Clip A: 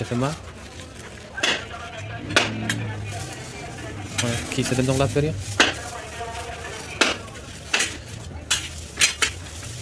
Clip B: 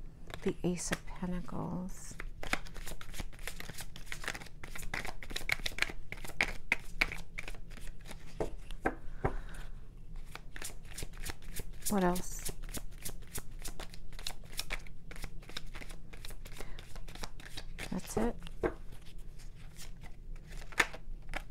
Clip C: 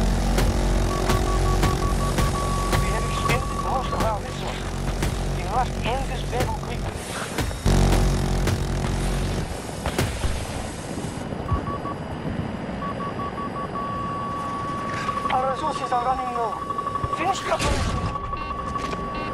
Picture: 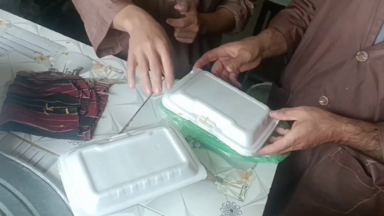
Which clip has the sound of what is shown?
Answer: A